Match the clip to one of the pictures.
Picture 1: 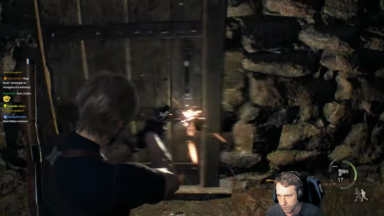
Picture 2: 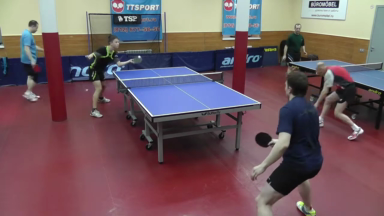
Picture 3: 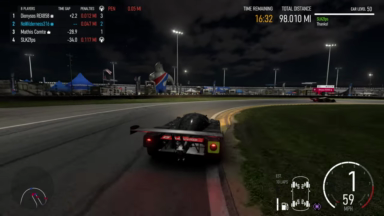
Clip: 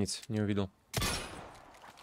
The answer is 1